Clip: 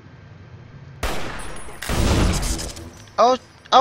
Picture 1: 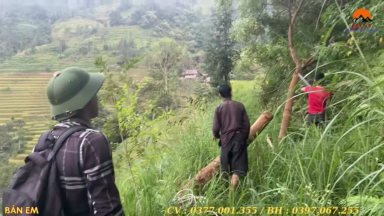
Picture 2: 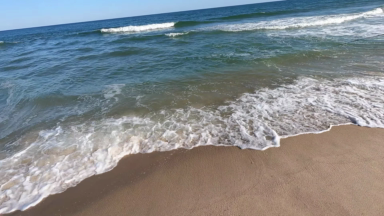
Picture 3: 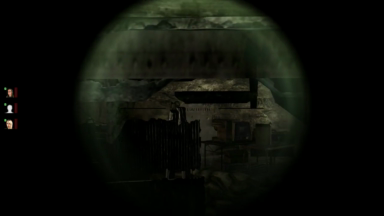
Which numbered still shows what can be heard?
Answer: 3